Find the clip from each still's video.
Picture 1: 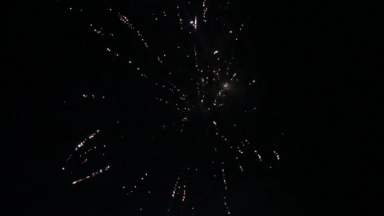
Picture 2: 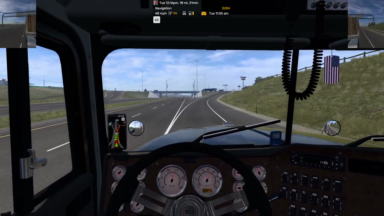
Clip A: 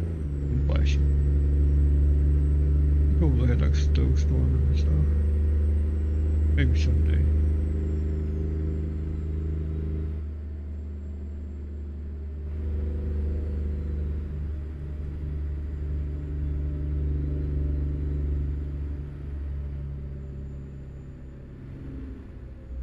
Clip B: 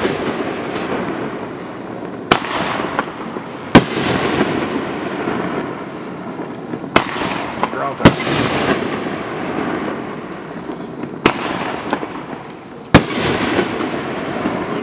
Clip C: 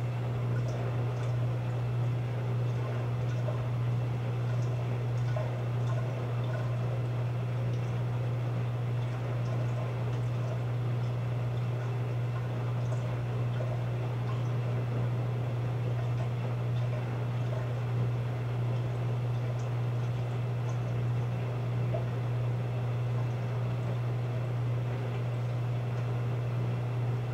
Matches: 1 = B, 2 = A